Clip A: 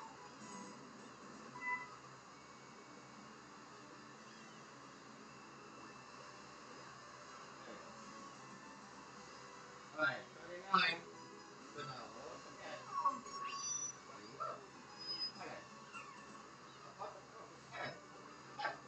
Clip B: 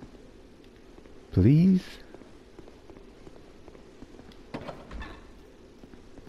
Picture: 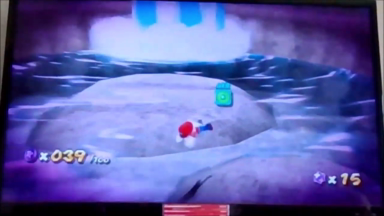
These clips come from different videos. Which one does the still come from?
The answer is A